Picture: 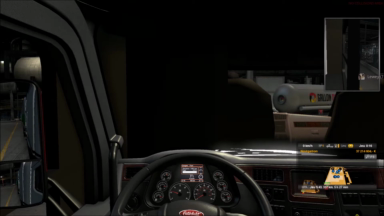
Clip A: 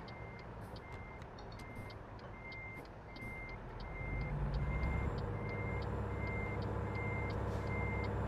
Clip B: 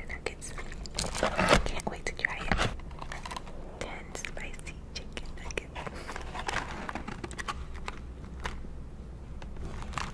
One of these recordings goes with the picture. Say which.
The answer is A